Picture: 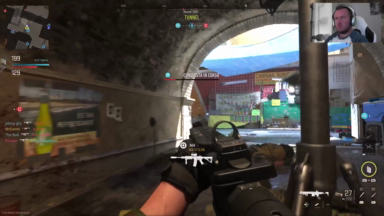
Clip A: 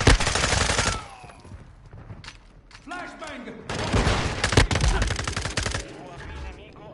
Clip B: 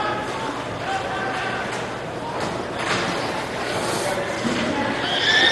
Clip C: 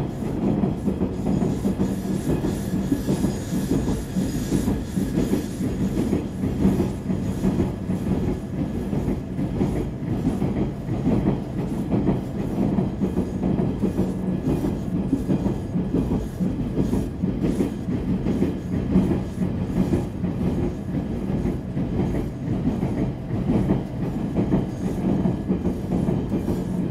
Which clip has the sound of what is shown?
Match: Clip A